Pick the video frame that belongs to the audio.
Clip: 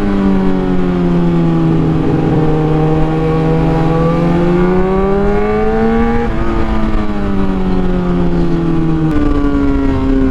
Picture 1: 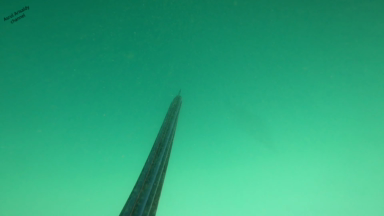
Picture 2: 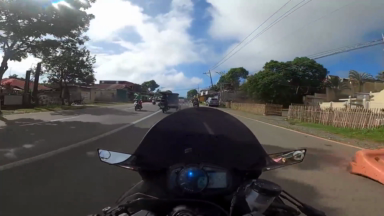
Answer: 2